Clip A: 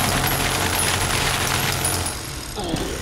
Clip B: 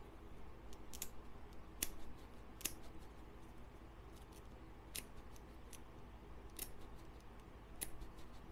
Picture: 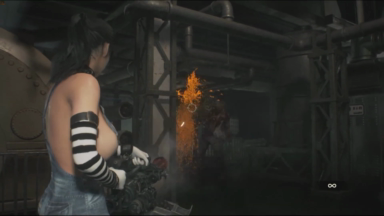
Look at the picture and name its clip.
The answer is A